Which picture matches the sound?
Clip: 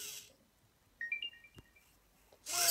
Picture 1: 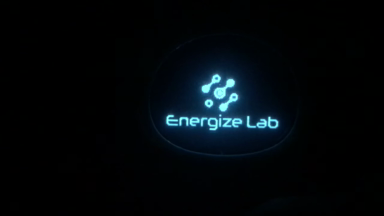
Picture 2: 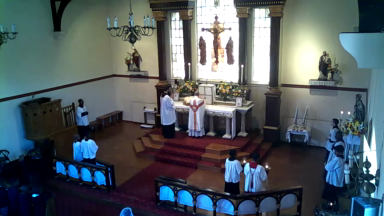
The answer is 1